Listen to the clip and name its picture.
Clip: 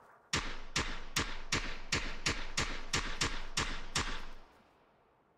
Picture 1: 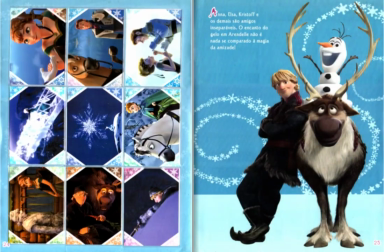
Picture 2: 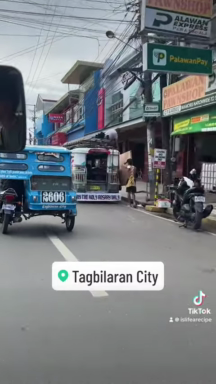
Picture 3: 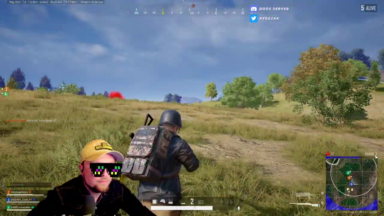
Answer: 3